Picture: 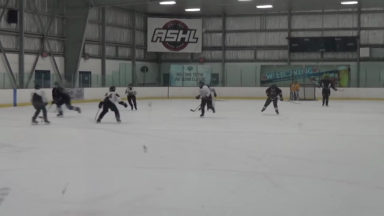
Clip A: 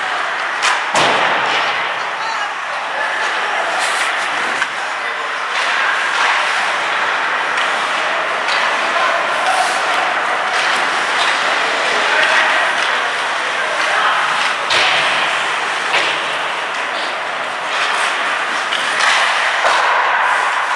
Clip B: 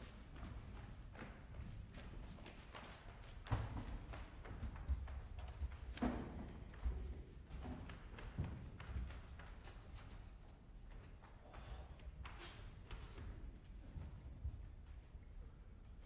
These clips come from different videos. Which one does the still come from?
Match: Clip A